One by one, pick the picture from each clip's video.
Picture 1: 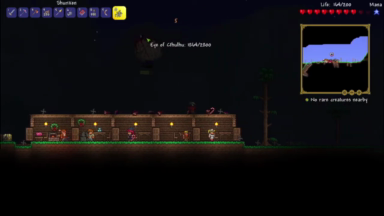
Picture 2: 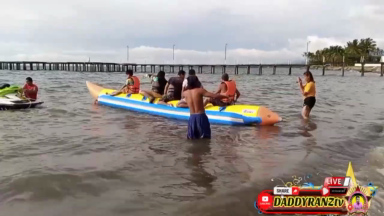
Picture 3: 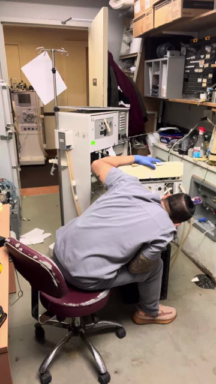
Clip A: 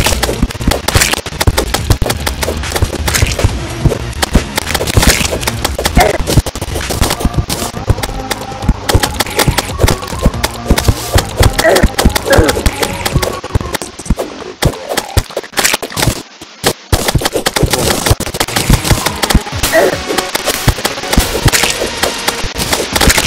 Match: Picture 1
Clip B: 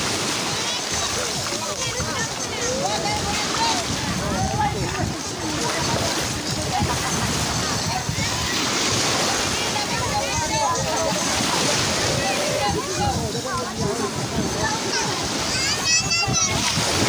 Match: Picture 2